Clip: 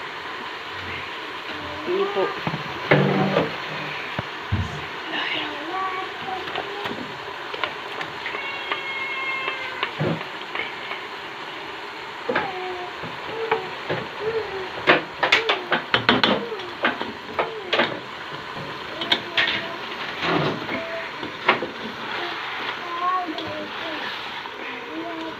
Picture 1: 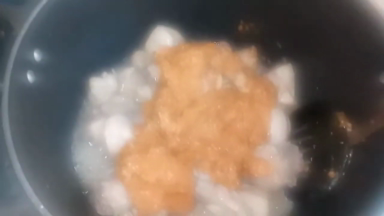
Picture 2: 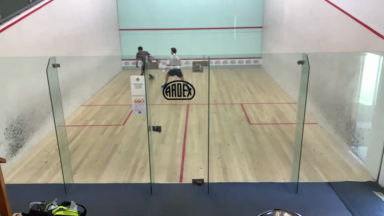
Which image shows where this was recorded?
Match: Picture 1